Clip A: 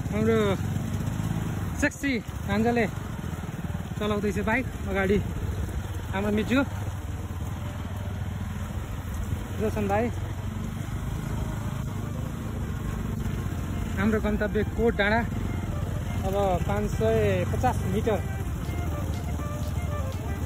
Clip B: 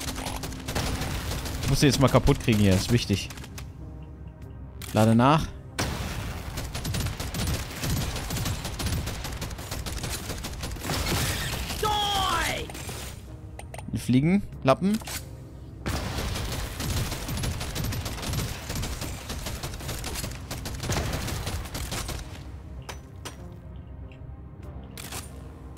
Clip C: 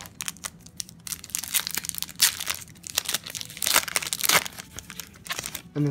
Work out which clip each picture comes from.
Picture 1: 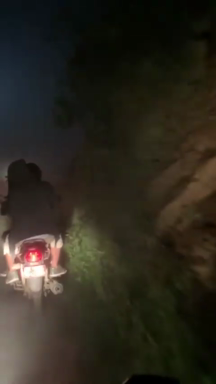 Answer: A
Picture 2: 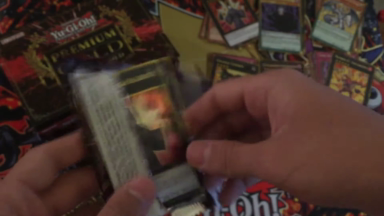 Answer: C